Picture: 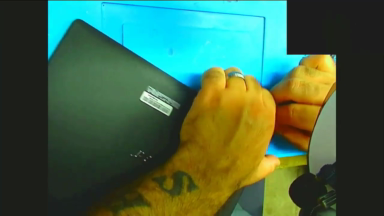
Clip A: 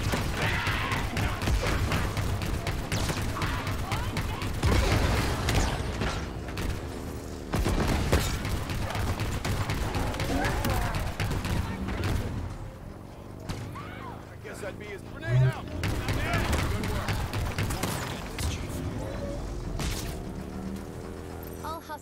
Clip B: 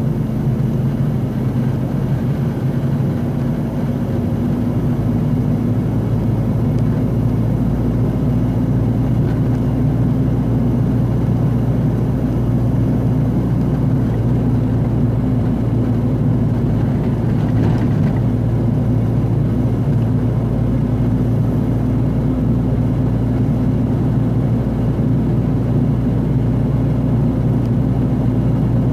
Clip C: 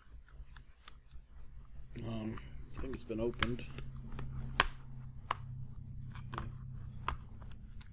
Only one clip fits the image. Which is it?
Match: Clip C